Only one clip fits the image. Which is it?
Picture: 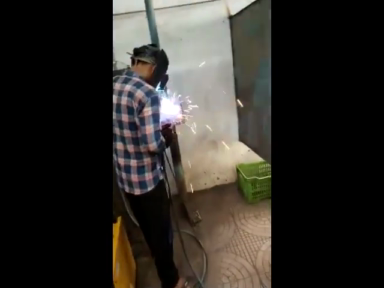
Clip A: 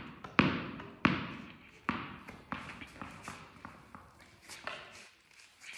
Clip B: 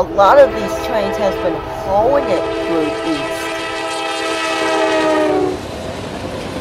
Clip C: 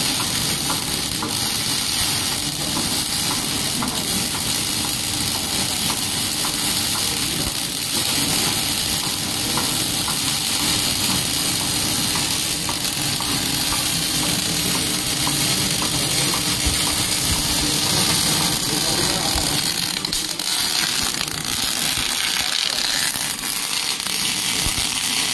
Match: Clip C